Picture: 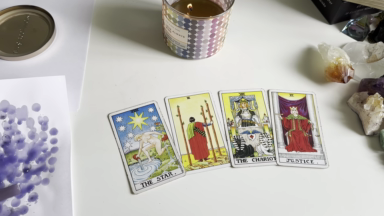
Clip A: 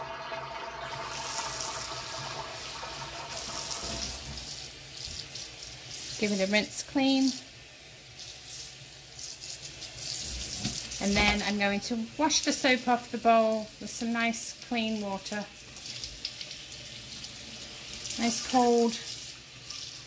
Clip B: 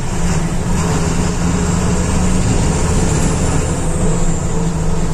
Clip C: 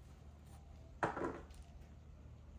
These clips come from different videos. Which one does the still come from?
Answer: C